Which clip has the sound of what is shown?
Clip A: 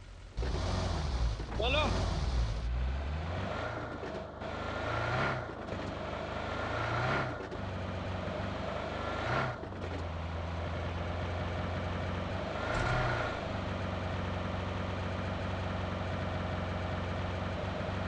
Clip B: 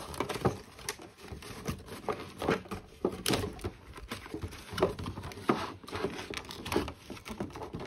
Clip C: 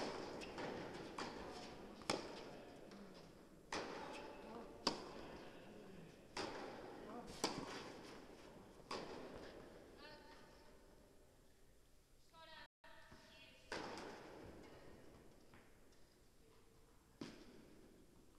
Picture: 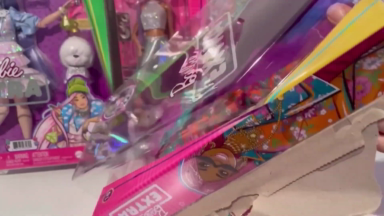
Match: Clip B